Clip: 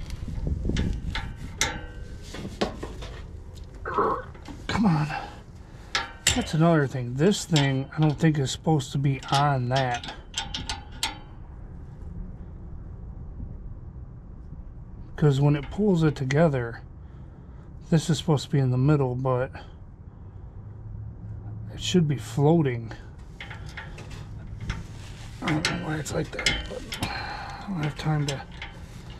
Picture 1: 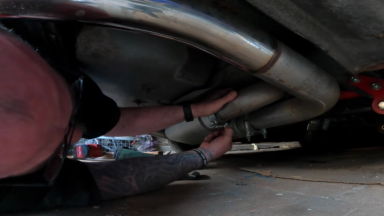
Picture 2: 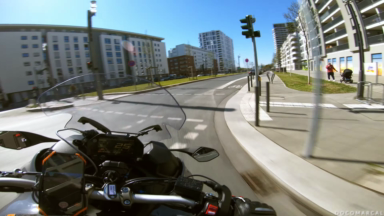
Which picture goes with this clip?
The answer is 1